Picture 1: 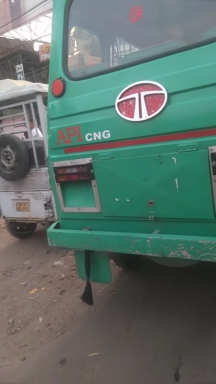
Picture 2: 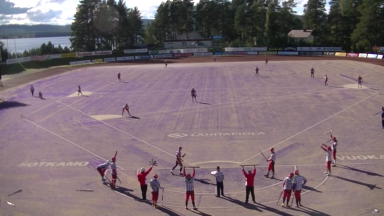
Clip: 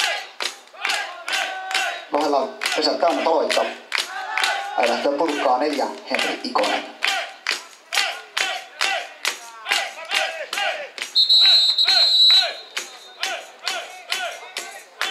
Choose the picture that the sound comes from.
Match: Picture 2